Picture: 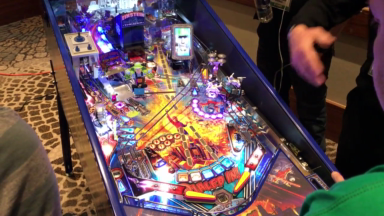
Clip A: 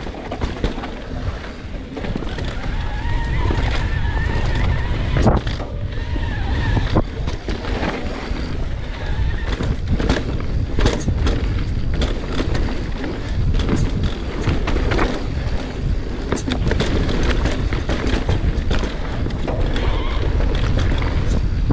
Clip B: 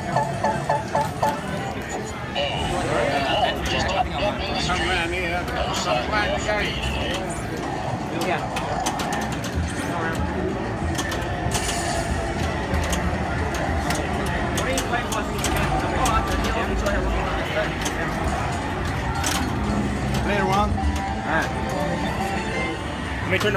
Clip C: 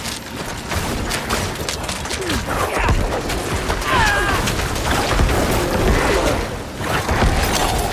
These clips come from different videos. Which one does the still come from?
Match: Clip B